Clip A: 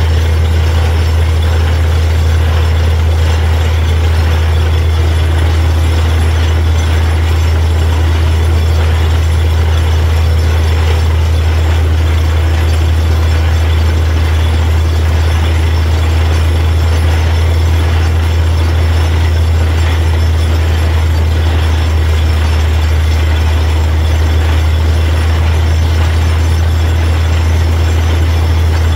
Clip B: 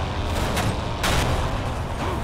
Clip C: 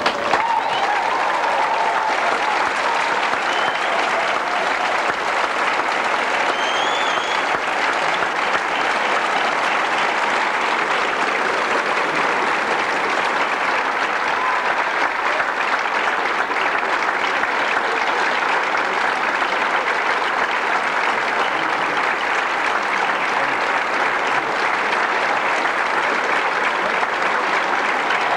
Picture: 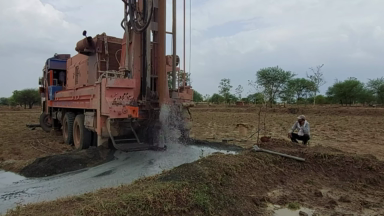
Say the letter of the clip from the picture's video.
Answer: A